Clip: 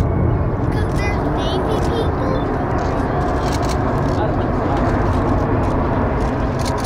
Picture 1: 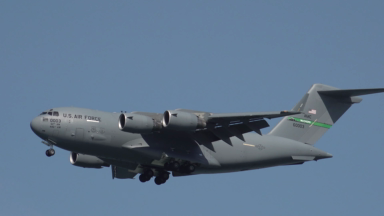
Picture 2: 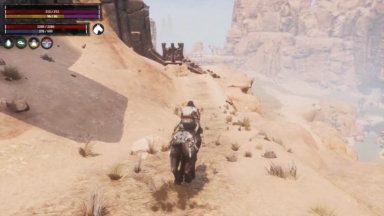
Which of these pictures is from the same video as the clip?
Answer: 1